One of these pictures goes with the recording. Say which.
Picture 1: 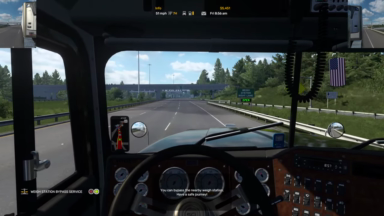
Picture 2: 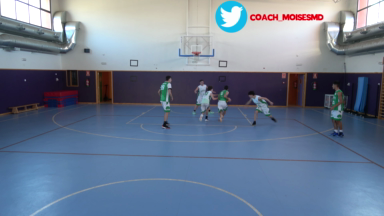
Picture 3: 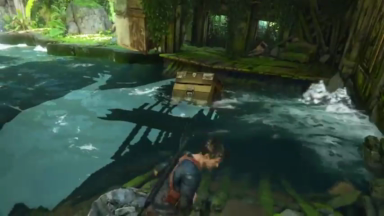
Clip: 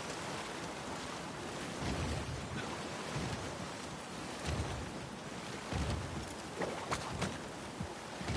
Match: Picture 3